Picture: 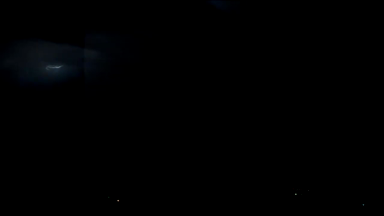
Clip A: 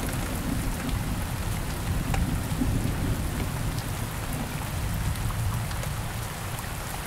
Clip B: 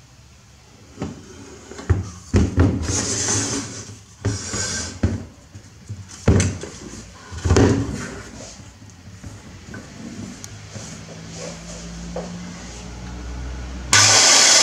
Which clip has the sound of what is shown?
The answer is A